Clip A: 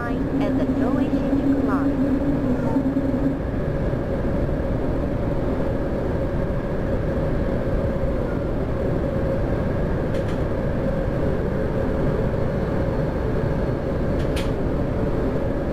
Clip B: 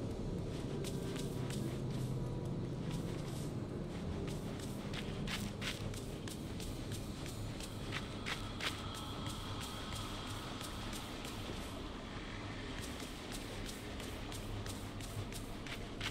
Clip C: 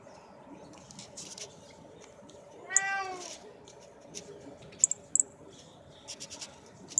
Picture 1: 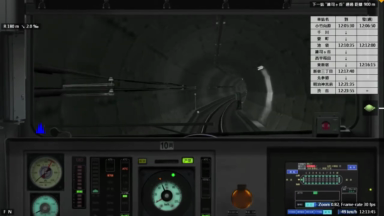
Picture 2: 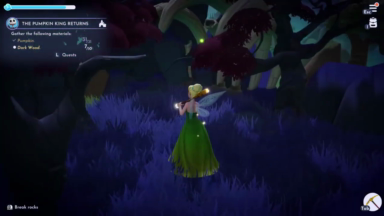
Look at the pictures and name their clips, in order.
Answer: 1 A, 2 B